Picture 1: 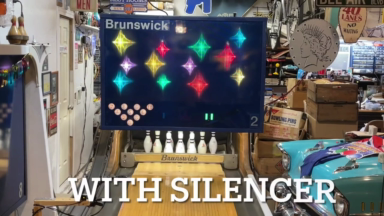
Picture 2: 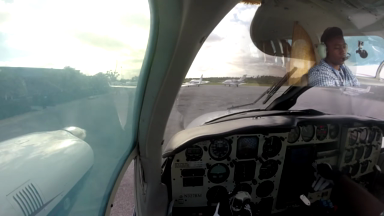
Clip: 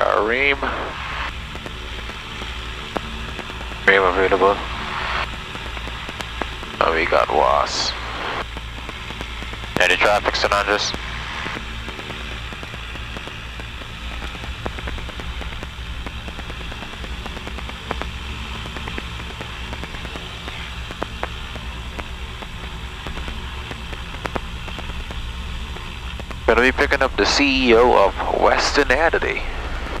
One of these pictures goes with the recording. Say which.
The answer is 2